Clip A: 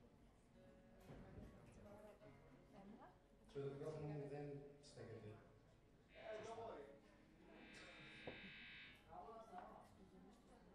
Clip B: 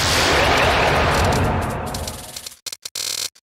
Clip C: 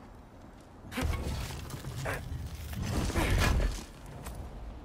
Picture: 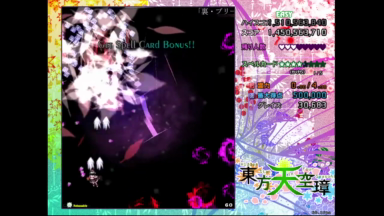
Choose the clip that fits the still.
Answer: B